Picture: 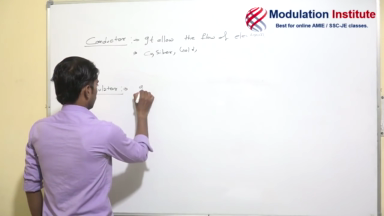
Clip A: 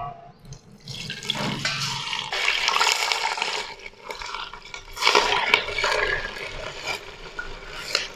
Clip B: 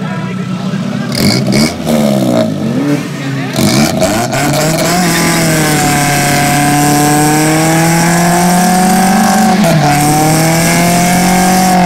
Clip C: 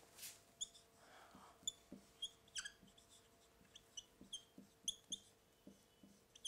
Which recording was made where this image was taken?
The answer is C